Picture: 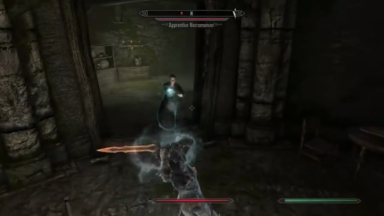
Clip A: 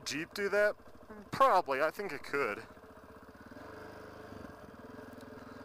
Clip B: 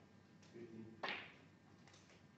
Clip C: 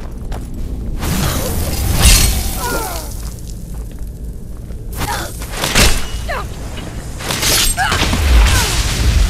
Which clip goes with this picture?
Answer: C